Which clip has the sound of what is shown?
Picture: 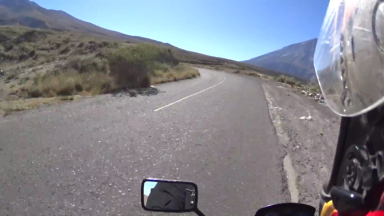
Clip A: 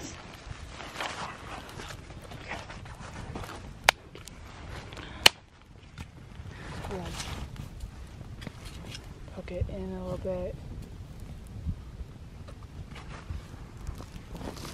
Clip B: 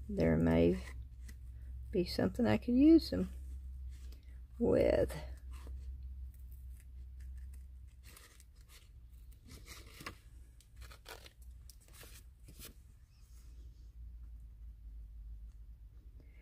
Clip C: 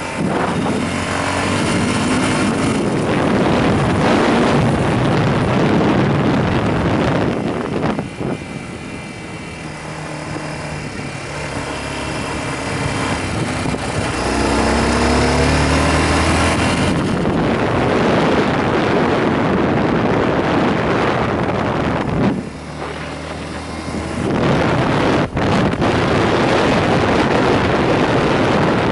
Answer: C